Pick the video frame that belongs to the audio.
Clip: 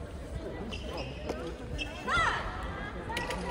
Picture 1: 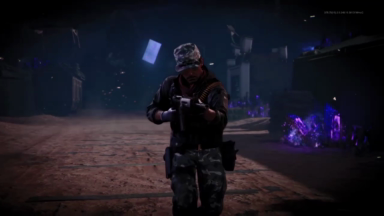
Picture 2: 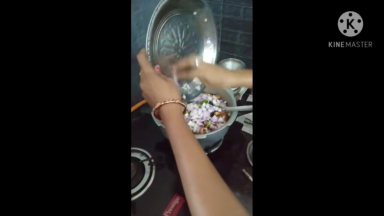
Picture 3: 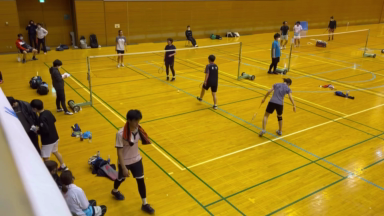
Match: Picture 3